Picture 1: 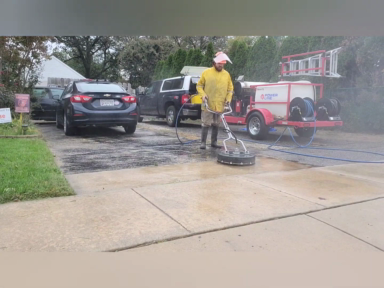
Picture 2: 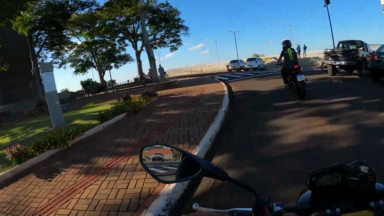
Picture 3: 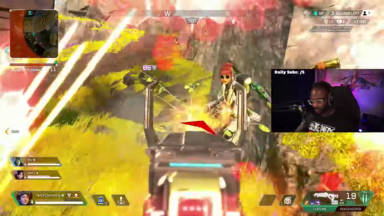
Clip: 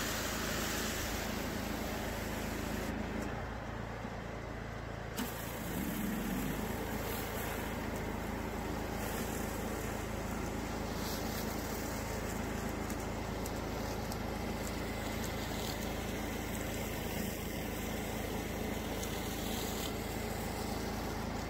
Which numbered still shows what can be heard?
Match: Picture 1